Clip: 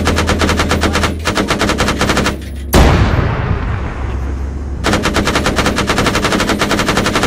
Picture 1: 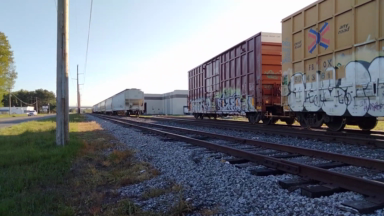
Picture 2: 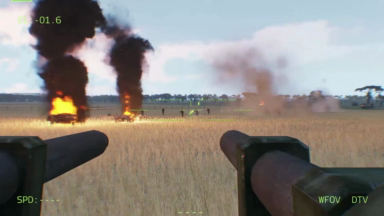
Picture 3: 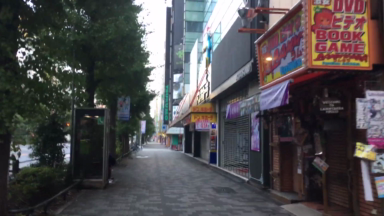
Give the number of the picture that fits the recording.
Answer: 2